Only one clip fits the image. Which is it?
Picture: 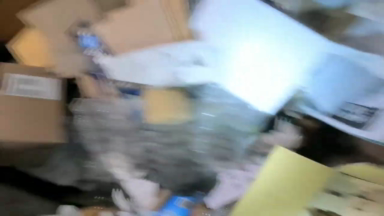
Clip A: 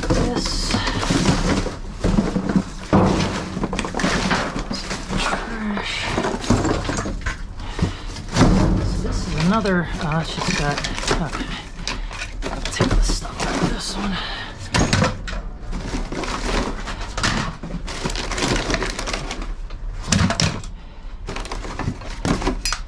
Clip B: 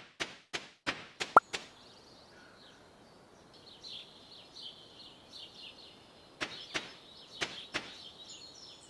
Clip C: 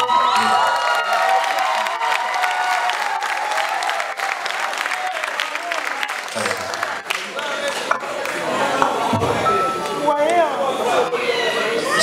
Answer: A